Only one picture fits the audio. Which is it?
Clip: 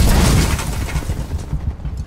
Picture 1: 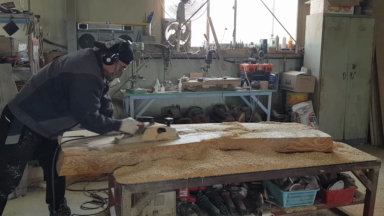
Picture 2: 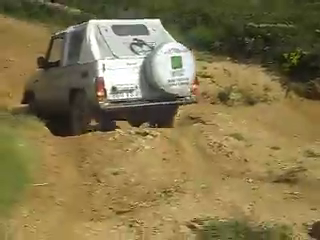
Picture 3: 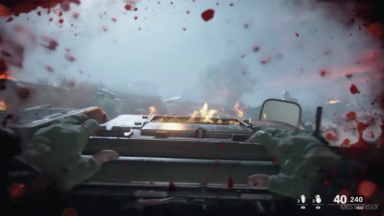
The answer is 3